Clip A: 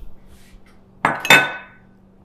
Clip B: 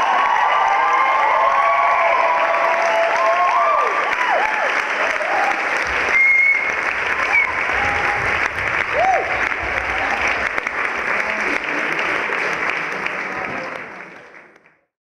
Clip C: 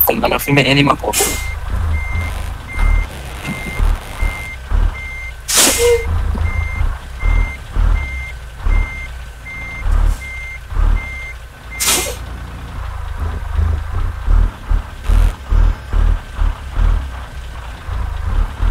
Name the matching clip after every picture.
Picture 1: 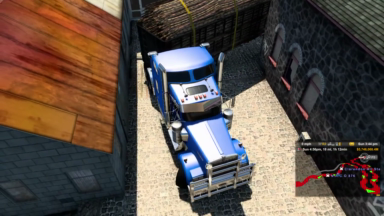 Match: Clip C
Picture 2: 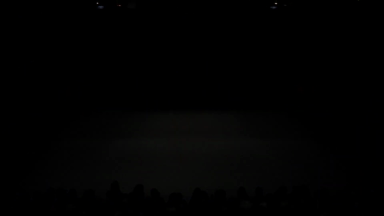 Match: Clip B